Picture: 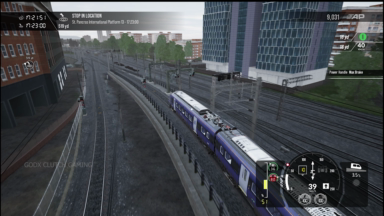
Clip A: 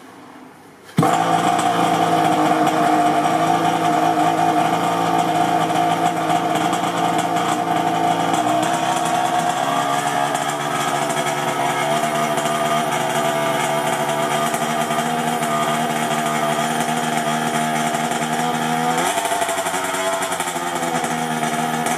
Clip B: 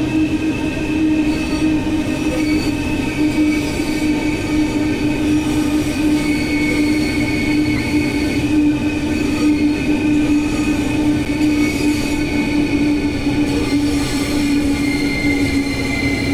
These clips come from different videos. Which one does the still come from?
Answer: B